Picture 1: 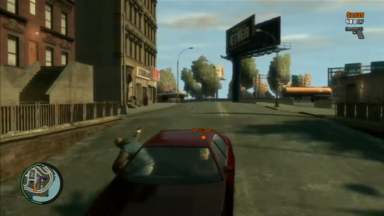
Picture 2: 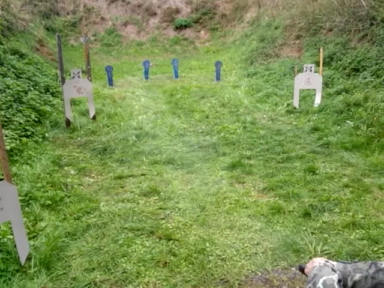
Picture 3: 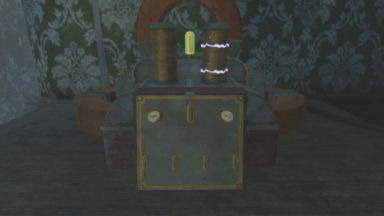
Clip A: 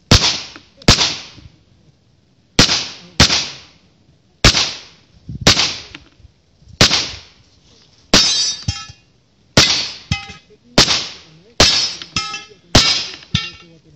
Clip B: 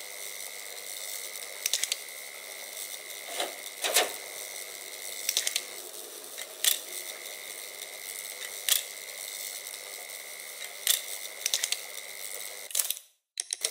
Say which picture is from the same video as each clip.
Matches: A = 2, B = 3